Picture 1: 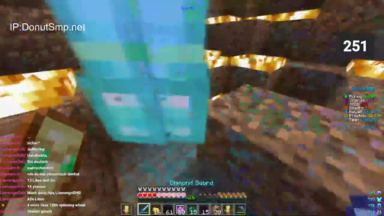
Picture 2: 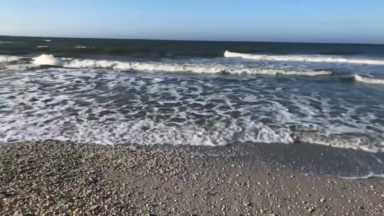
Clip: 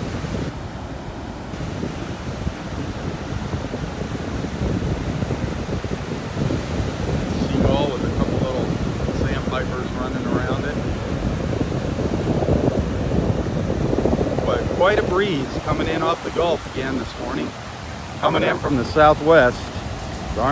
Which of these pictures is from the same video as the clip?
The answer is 2